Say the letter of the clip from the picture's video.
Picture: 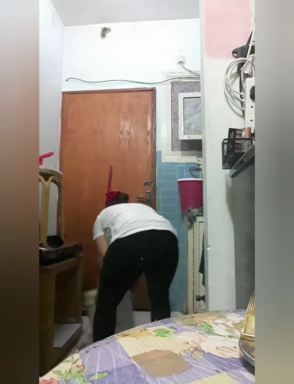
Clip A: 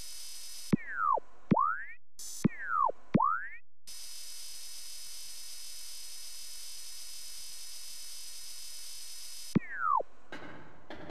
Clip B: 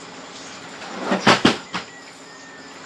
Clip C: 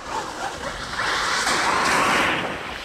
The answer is B